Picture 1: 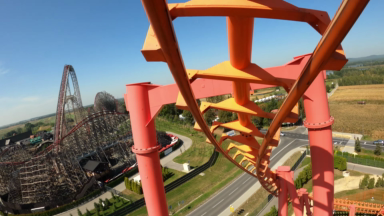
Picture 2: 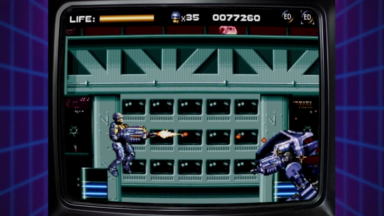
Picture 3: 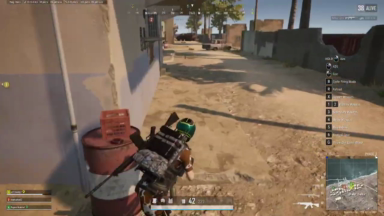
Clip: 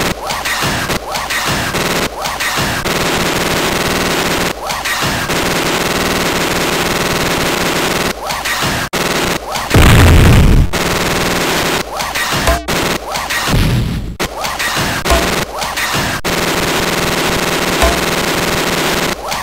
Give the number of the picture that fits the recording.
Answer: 2